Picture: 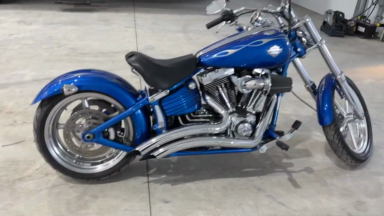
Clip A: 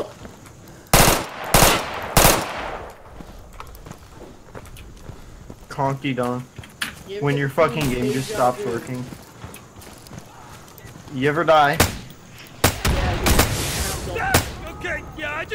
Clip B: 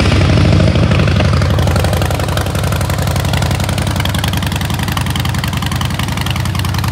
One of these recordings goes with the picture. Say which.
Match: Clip B